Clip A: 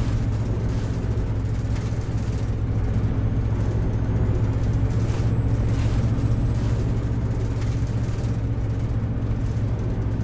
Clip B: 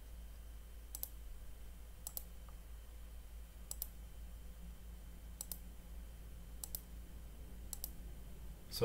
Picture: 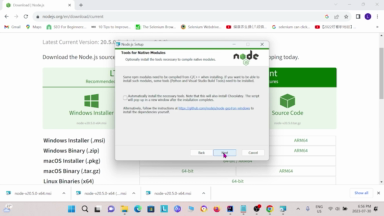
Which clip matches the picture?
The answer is B